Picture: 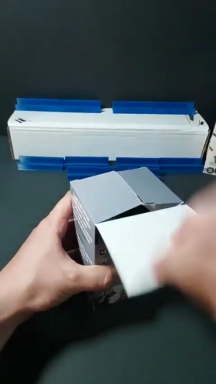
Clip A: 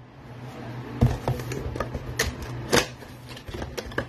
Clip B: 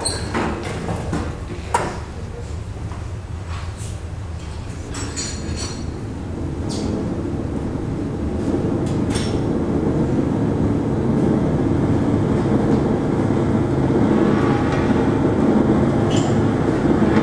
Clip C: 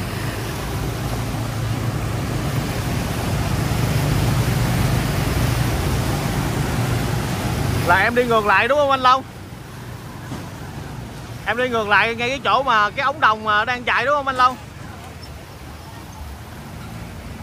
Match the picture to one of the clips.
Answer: A